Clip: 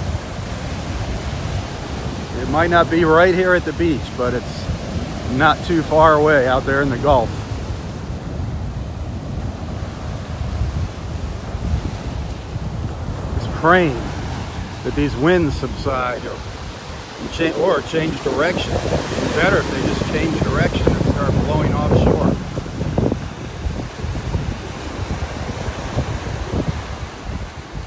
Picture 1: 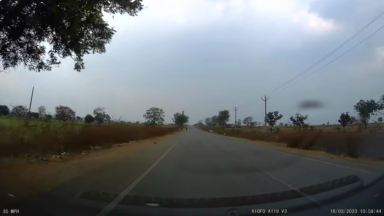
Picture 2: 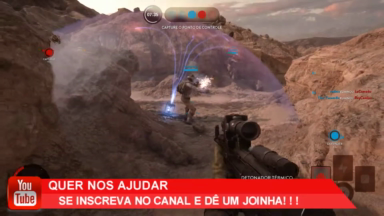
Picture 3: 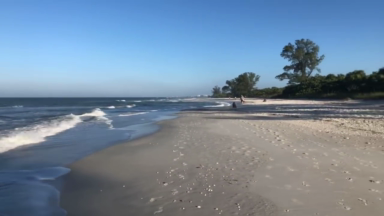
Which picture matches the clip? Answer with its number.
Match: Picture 3